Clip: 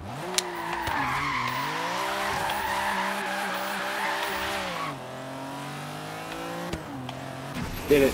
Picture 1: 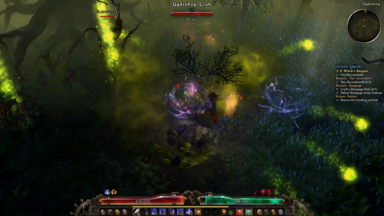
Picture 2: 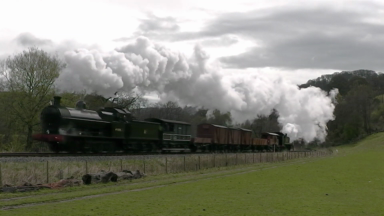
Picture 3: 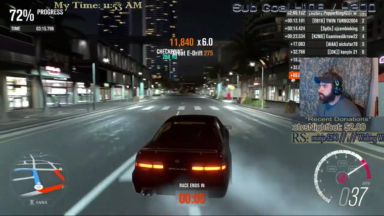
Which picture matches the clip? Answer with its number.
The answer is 3